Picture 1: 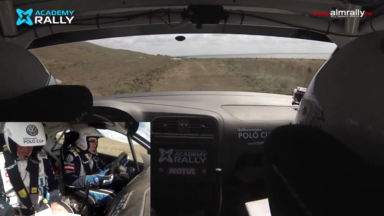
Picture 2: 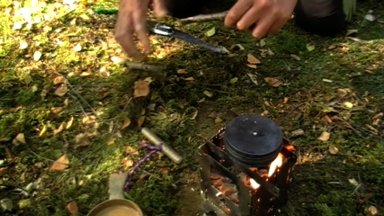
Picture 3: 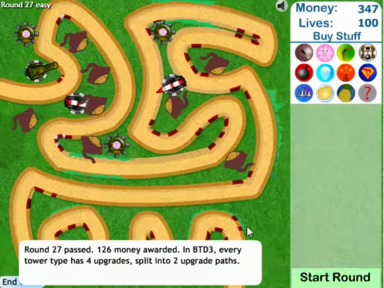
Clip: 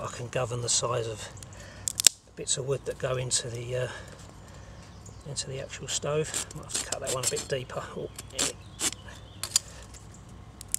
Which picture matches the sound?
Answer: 2